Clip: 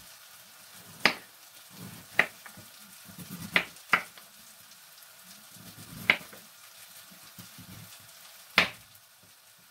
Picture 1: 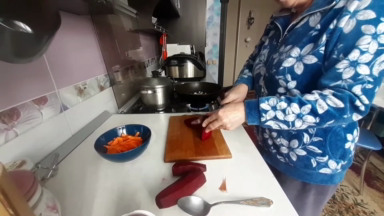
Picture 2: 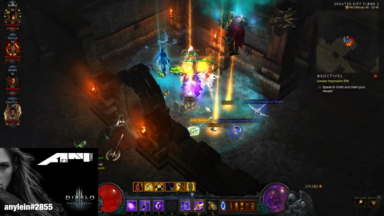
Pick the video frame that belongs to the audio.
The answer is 1